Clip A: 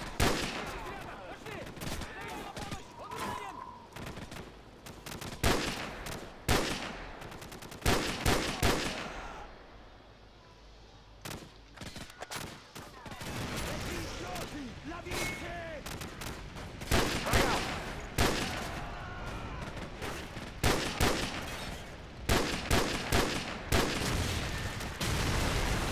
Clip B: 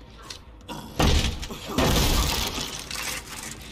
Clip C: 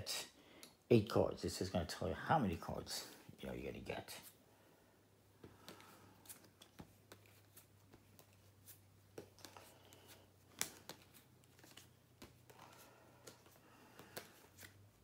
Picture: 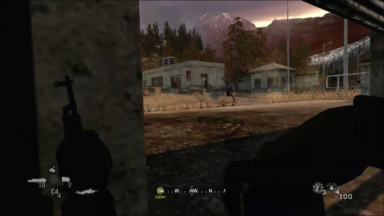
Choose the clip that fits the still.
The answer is A